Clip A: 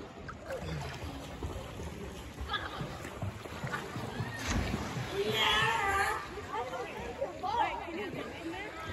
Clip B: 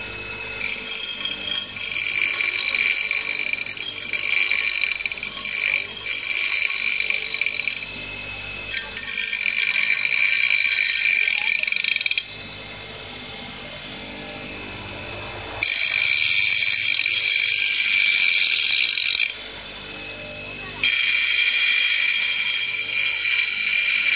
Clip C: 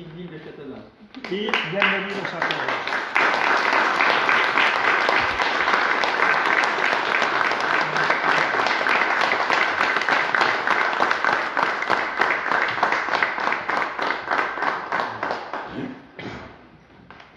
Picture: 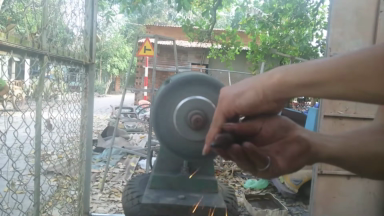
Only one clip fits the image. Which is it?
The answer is B